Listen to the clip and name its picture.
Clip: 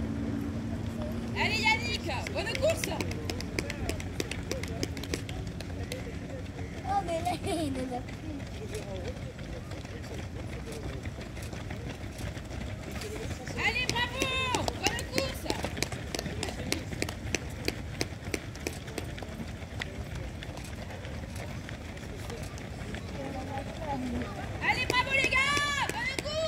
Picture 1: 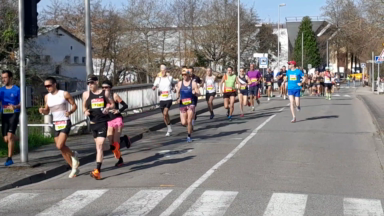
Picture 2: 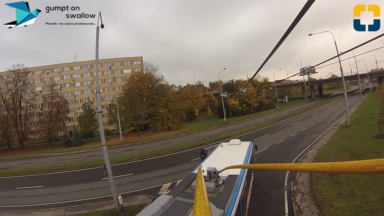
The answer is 1